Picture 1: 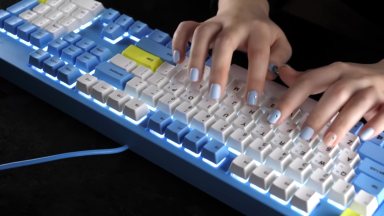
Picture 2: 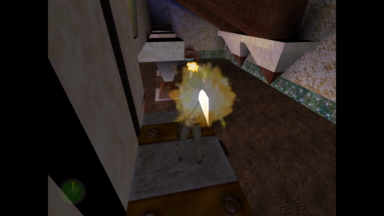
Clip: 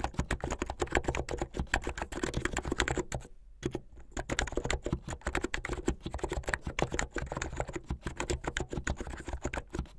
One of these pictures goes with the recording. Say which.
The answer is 1